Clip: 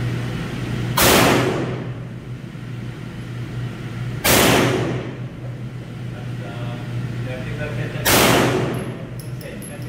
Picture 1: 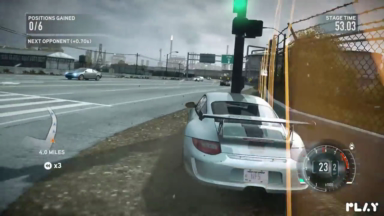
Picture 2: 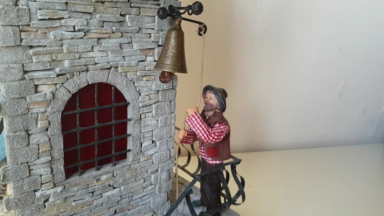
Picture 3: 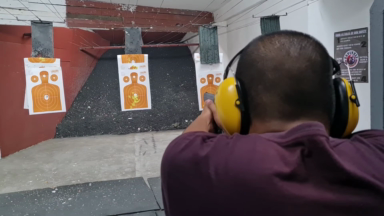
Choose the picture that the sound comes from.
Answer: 3